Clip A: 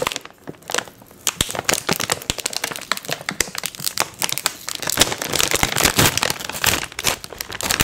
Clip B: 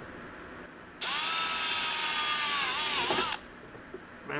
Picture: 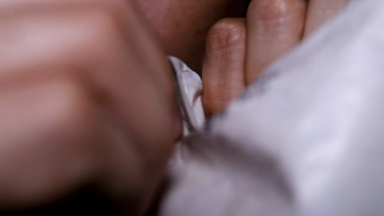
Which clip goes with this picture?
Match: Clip A